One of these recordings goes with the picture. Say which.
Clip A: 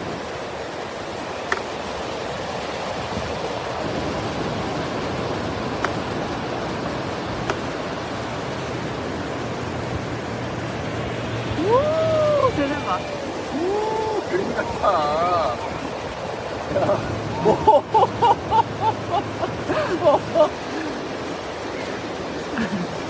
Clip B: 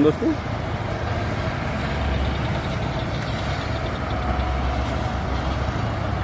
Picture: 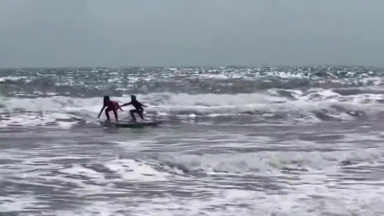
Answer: A